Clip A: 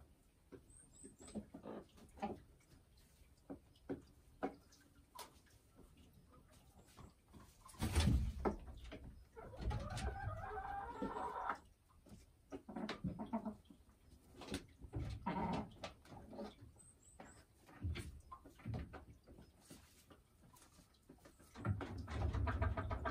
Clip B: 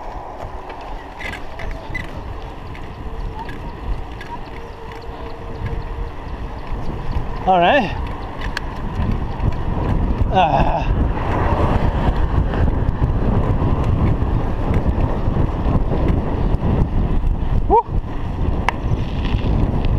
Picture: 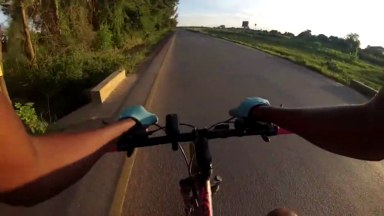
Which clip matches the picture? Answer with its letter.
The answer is B